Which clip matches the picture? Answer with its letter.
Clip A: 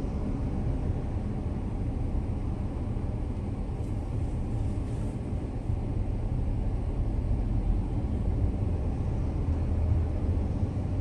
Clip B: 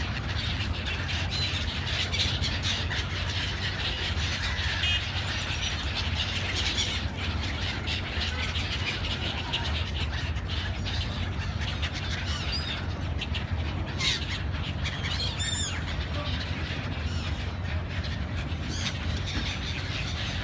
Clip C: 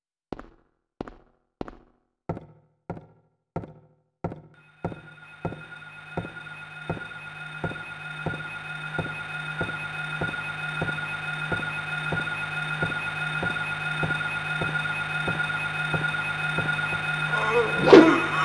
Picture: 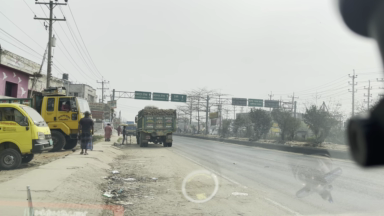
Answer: A